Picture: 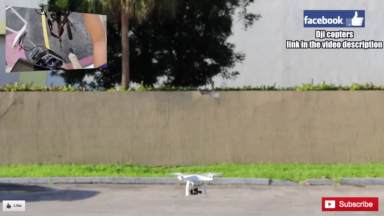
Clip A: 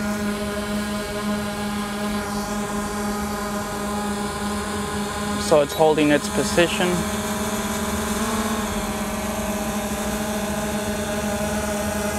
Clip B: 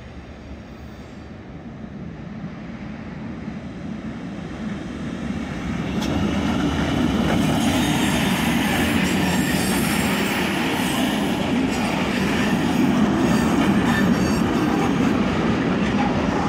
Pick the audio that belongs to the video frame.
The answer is A